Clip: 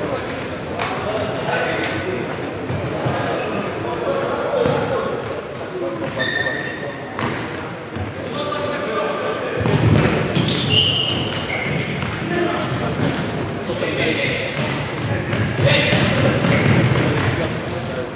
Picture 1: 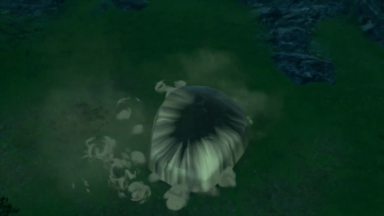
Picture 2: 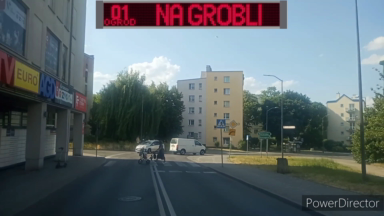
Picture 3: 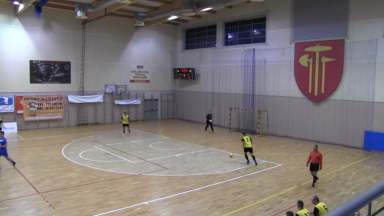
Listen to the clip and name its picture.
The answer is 3